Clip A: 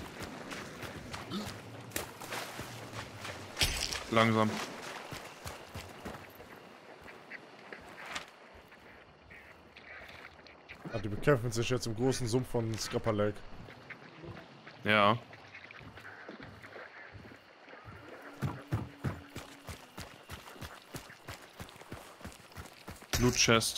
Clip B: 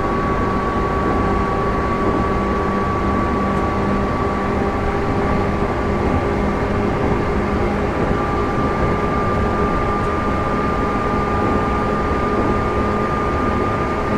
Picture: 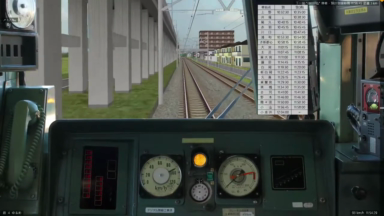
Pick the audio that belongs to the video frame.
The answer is B